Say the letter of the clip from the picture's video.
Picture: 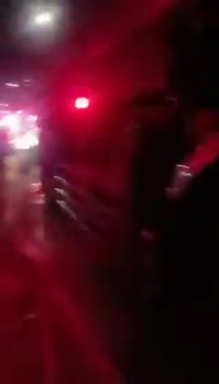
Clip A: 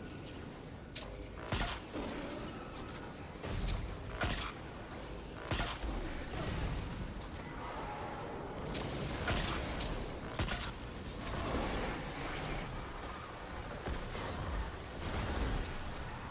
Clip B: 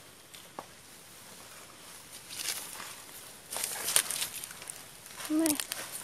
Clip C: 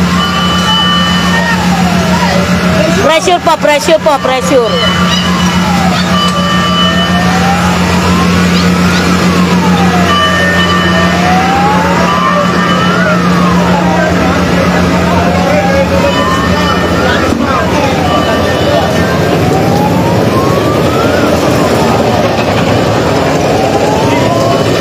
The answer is C